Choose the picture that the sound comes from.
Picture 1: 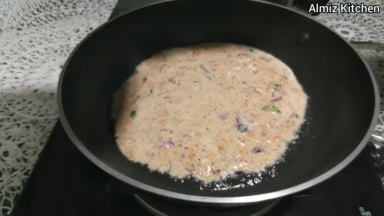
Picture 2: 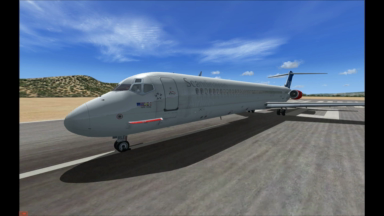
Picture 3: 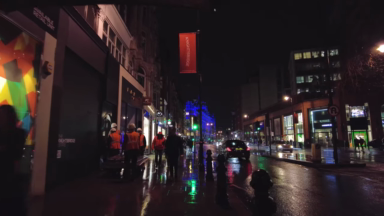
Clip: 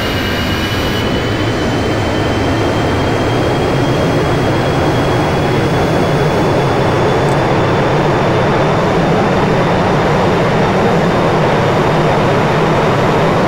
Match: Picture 2